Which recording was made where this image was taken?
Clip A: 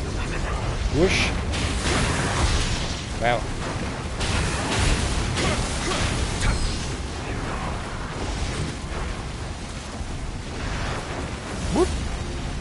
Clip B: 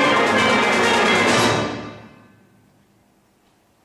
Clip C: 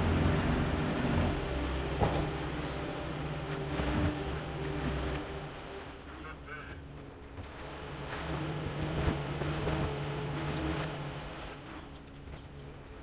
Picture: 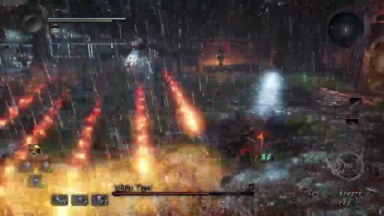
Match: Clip A